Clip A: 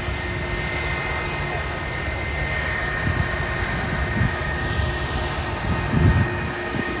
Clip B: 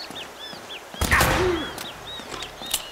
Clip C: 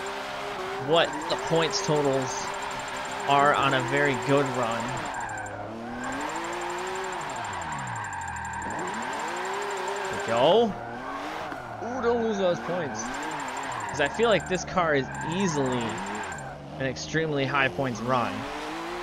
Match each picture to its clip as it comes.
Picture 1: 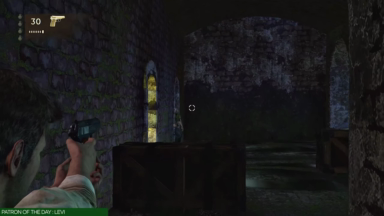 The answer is B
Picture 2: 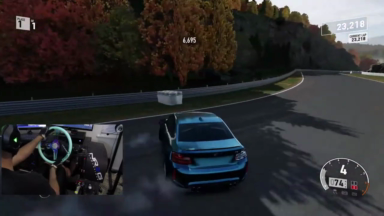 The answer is C